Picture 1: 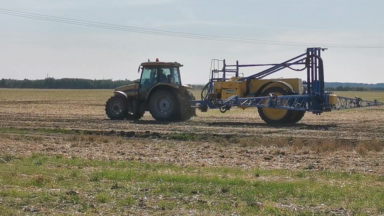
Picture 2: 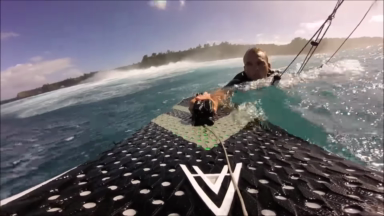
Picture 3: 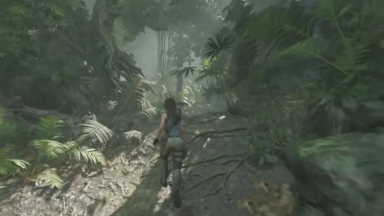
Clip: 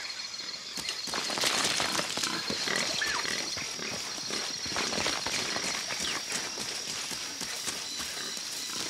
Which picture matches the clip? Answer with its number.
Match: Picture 3